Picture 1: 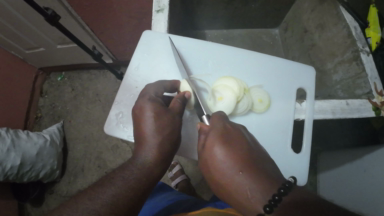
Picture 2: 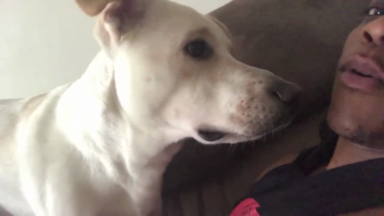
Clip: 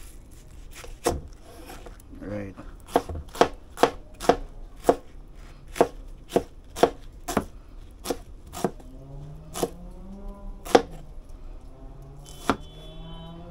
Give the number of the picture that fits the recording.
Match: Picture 1